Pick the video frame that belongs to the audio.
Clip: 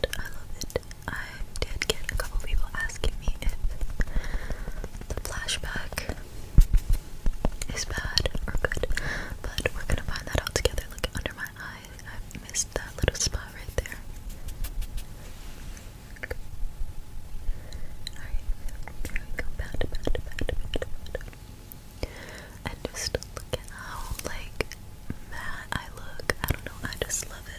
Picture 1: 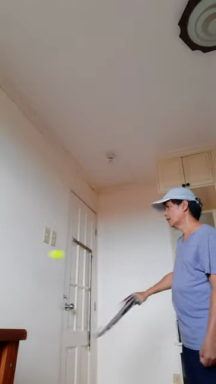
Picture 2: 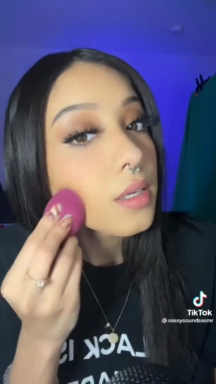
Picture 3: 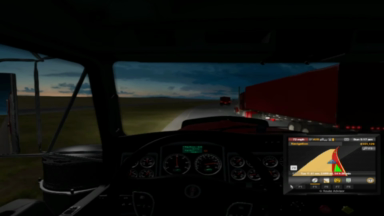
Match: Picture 2